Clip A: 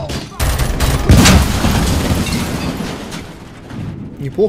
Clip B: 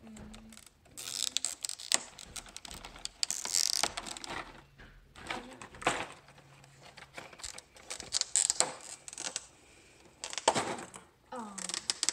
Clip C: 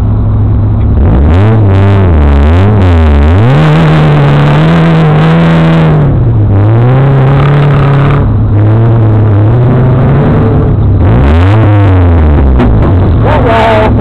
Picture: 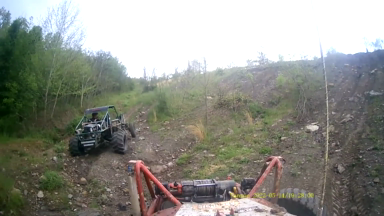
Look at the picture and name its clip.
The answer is C